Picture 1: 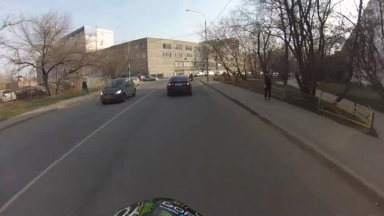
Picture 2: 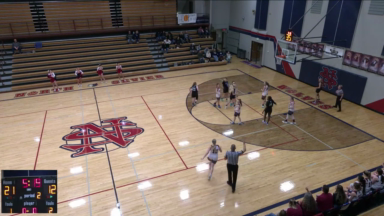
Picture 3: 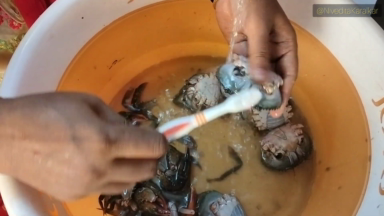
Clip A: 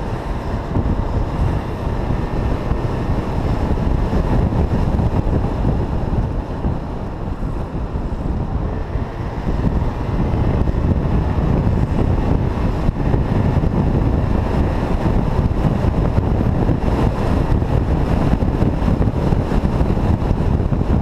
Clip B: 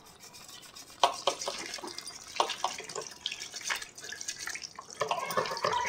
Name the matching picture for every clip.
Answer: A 1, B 3